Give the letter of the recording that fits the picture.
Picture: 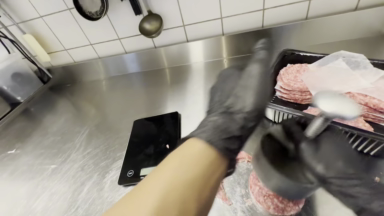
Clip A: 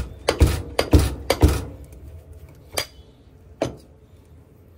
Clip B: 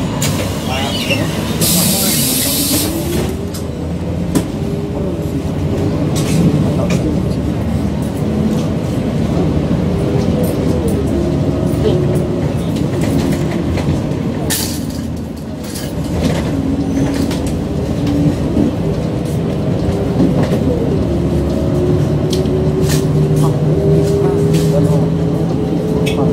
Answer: A